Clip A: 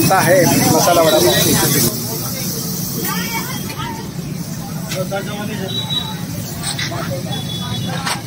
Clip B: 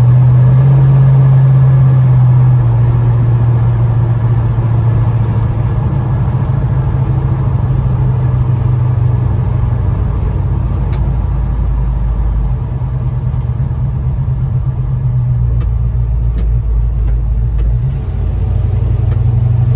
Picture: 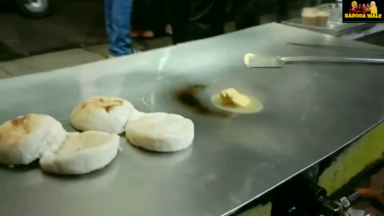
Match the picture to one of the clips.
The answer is A